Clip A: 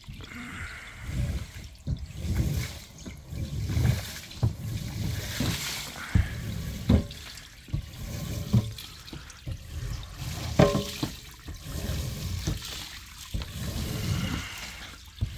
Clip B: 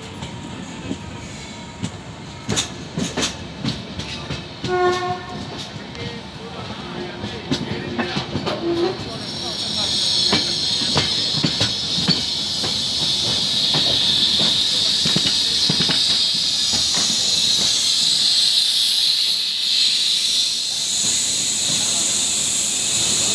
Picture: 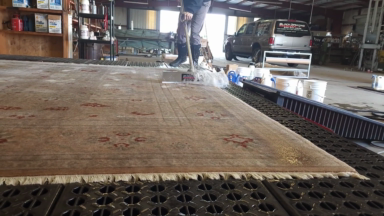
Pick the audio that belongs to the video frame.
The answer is A